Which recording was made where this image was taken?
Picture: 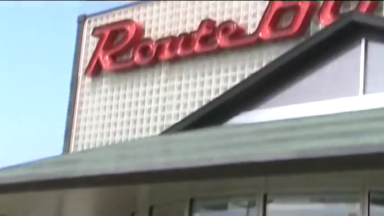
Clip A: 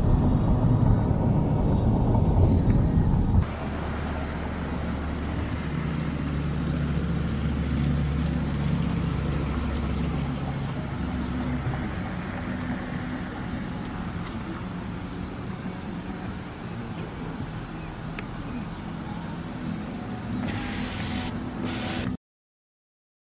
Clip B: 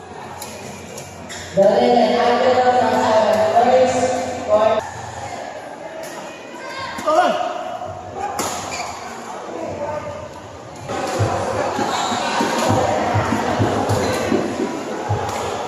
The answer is A